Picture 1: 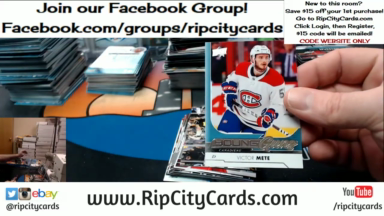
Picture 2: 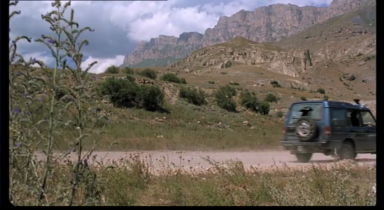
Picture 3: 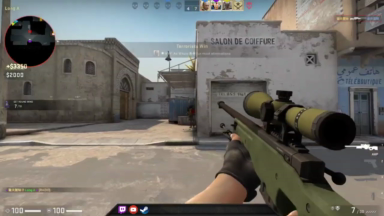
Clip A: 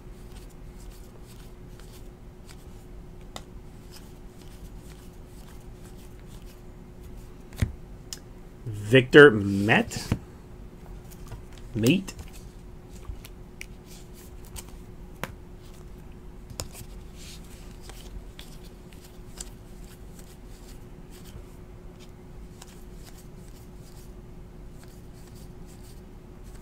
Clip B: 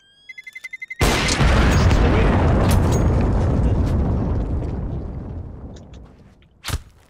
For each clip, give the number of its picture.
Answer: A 1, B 3